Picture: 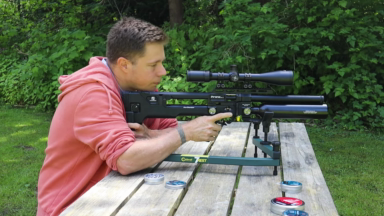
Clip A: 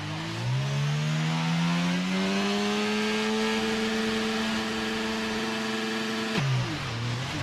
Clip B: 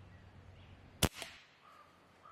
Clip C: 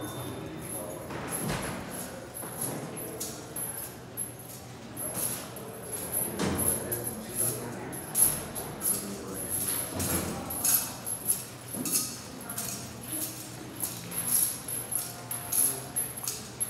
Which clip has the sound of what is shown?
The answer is B